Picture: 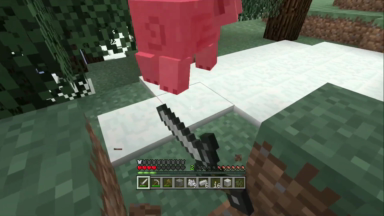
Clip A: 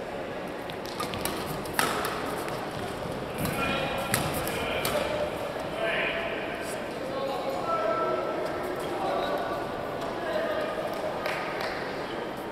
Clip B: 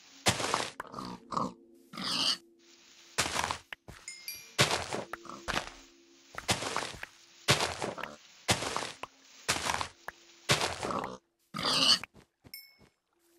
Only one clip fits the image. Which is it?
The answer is B